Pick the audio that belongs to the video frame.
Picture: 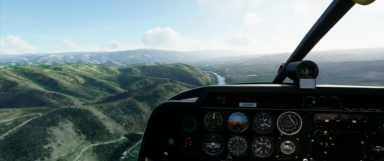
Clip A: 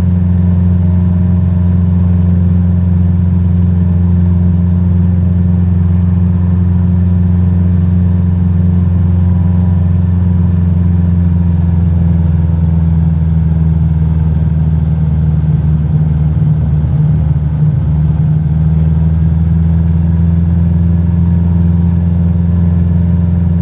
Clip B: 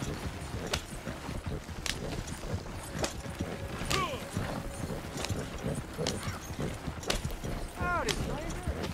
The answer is A